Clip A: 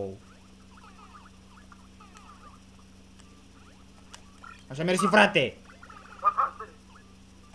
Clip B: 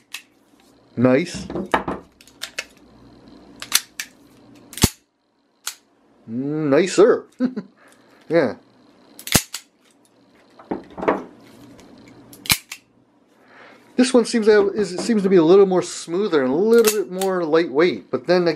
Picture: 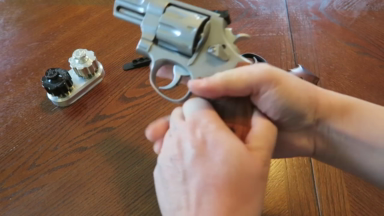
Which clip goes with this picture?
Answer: B